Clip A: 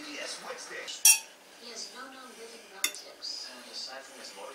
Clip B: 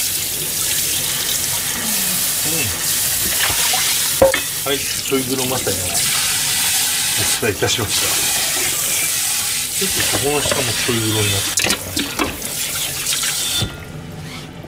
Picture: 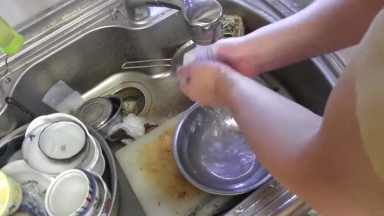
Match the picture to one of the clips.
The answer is B